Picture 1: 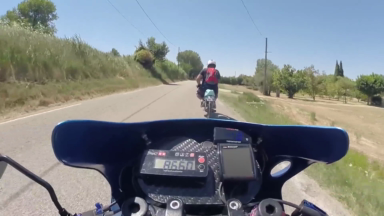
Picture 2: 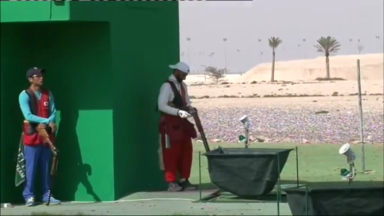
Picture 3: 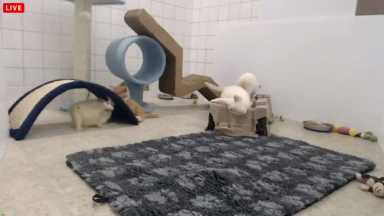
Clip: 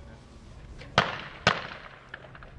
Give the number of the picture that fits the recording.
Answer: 2